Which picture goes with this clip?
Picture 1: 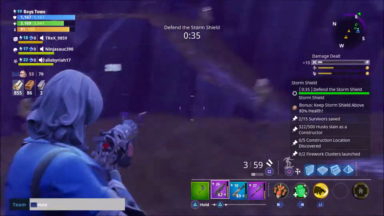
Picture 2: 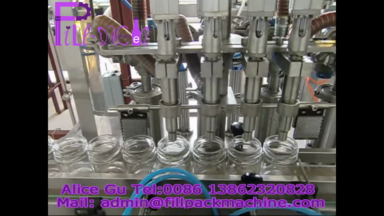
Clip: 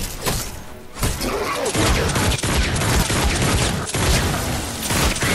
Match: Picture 1